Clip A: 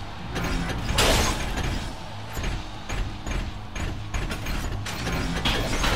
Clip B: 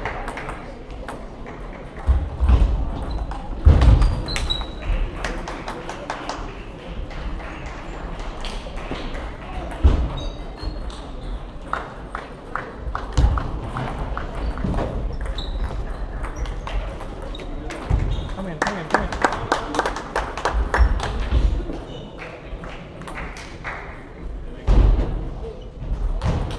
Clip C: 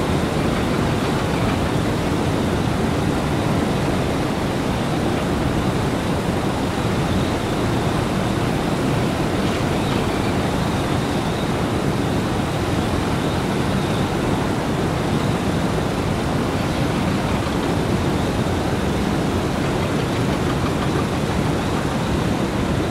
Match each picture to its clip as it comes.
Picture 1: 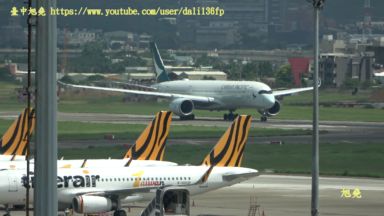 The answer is C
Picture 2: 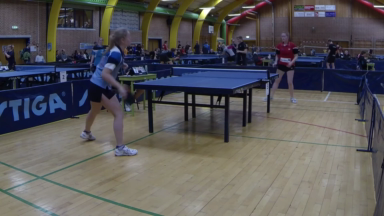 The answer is B